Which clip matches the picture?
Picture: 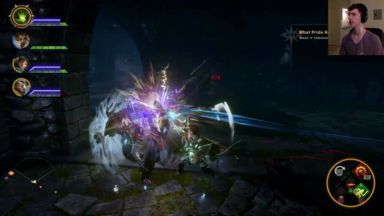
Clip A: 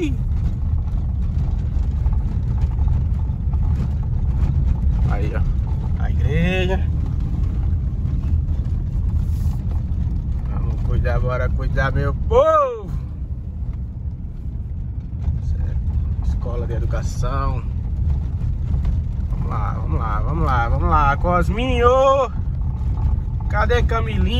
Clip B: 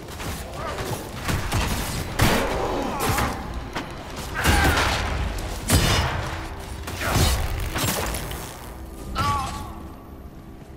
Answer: B